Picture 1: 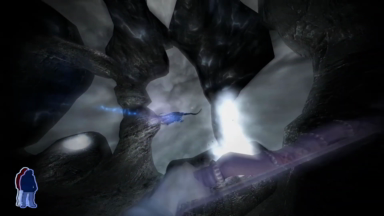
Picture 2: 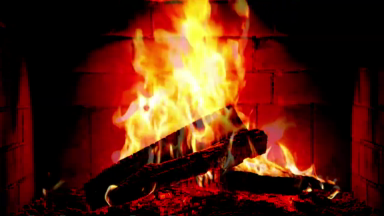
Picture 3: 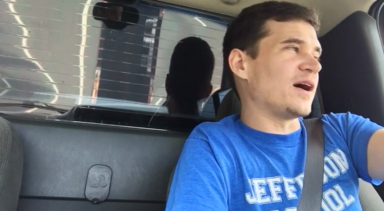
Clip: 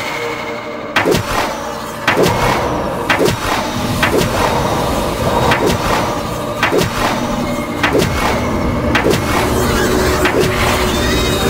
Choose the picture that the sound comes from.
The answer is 1